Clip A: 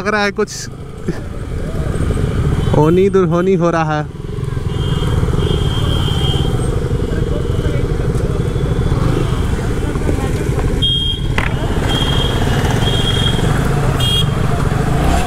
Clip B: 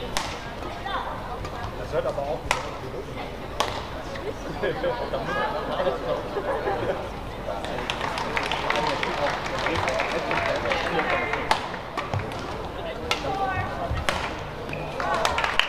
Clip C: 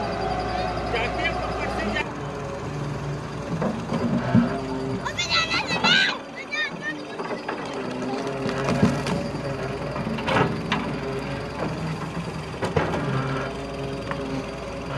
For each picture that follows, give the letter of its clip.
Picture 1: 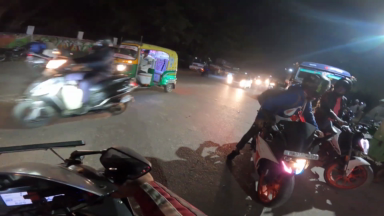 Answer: A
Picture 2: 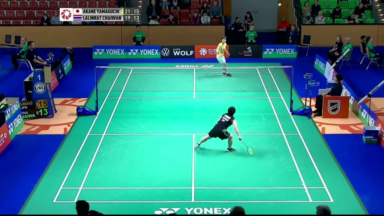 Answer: B